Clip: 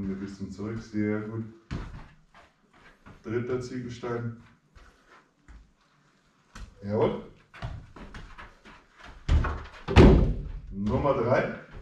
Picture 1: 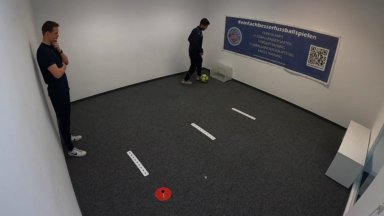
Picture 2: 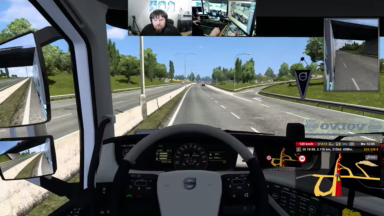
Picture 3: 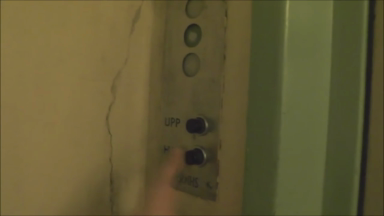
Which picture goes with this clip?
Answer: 1